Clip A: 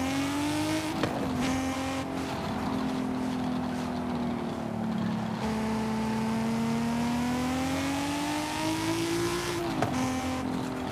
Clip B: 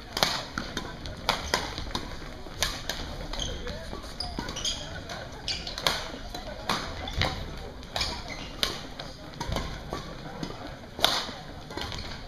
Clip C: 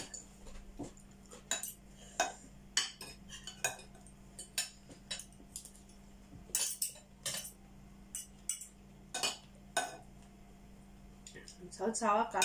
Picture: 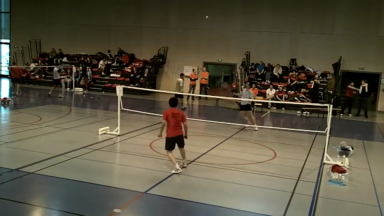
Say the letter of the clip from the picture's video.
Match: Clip B